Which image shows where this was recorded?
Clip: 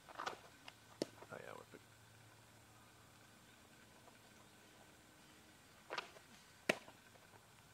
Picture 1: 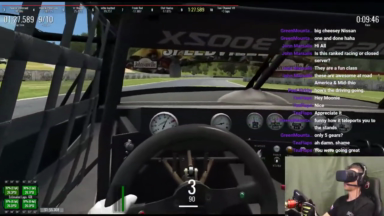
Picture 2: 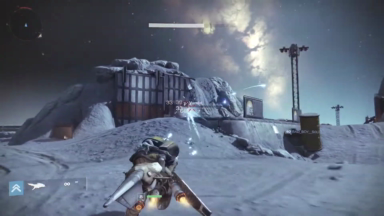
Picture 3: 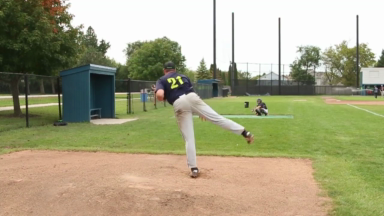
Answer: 3